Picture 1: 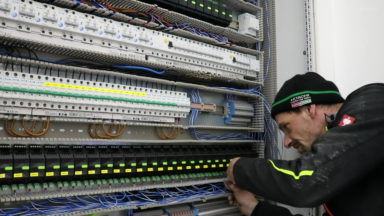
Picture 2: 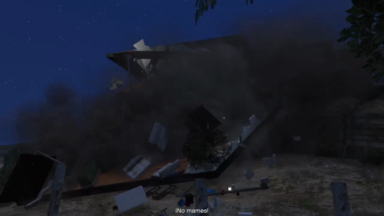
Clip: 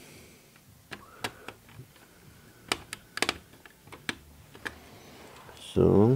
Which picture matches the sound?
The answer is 1